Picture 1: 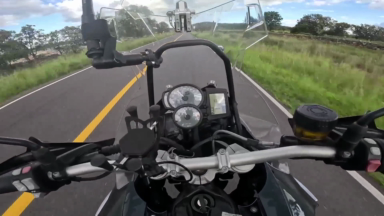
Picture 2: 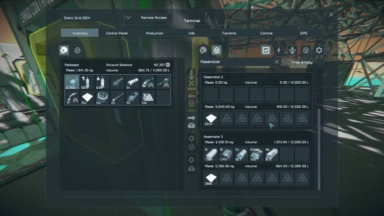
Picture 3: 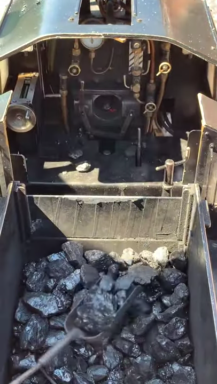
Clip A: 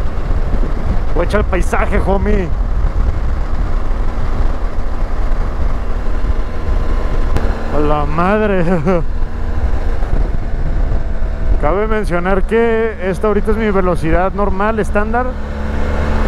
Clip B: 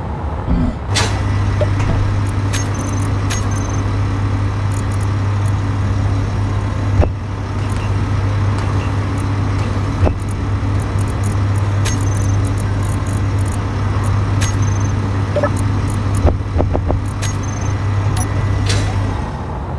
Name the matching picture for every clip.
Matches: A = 1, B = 2